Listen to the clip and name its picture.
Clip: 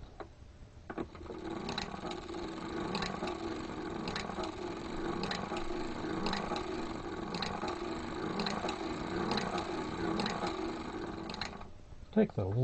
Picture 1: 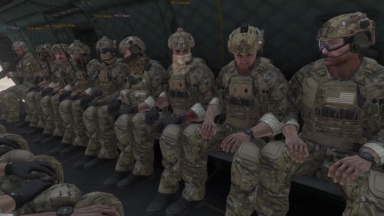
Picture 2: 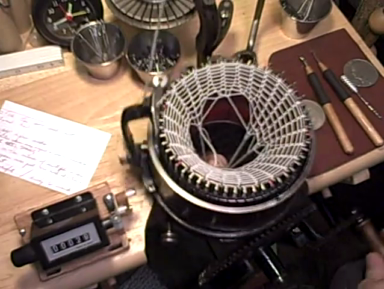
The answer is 2